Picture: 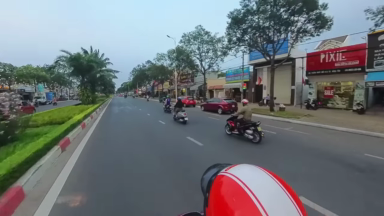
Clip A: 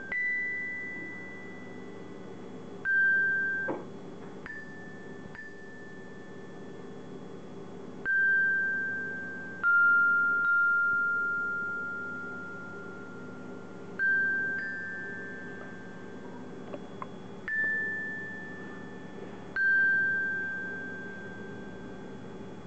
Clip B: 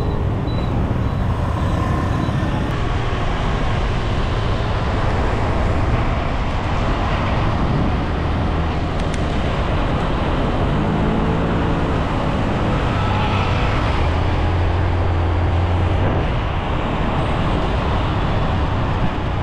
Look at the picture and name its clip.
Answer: B